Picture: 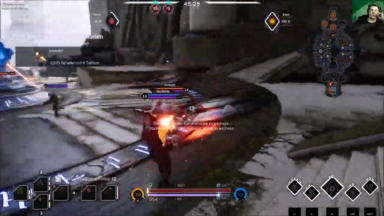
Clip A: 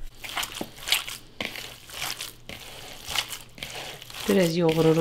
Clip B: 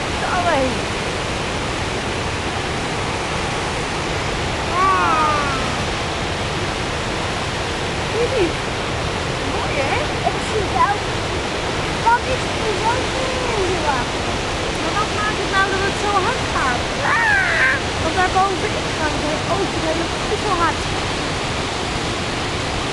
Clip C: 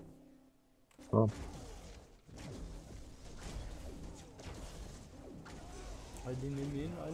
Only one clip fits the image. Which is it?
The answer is C